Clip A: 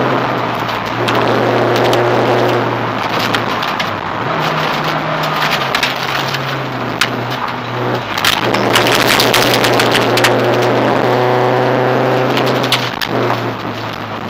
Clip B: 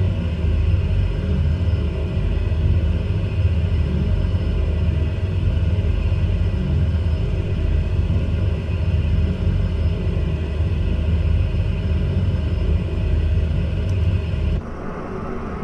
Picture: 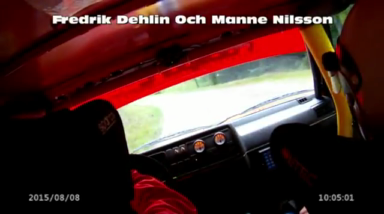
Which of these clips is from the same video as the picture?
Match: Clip A